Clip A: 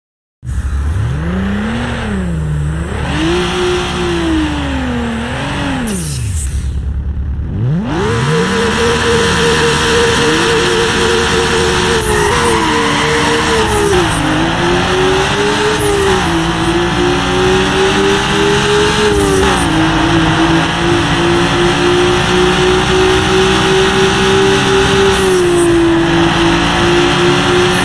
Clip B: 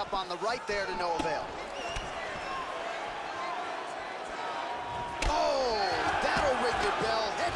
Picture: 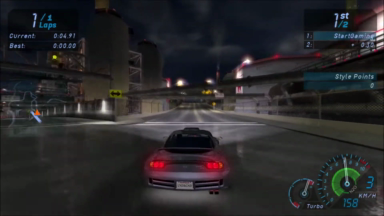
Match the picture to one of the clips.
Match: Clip A